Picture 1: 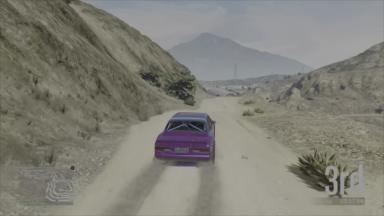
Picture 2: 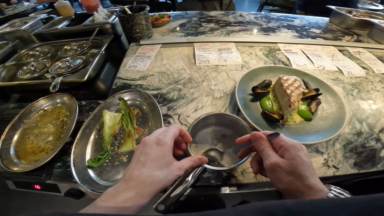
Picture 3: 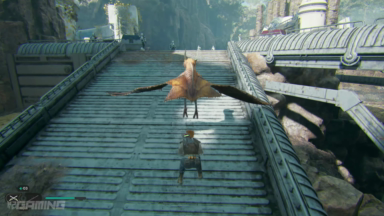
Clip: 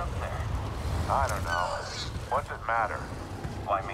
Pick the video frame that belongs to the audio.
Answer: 3